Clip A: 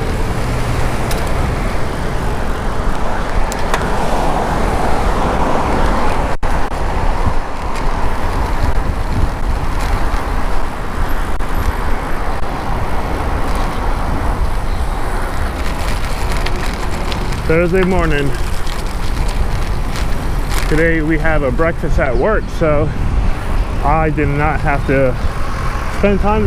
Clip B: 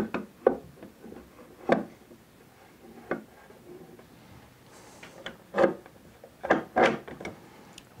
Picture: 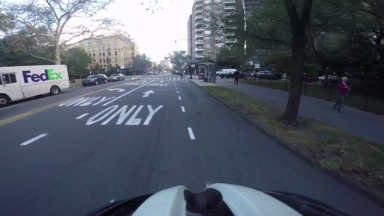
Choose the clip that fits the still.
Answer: A